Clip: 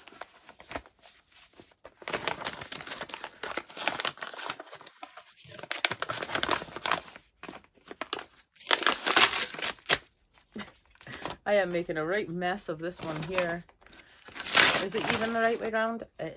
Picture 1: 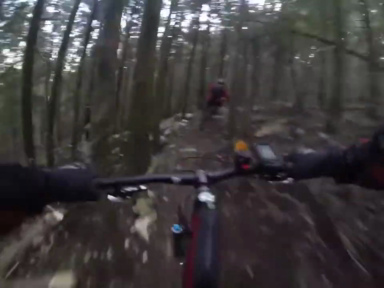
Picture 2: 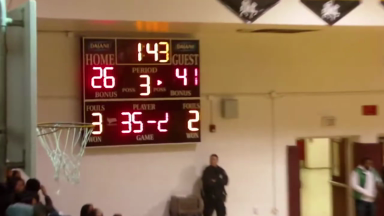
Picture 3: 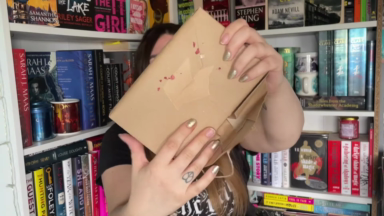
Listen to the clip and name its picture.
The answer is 3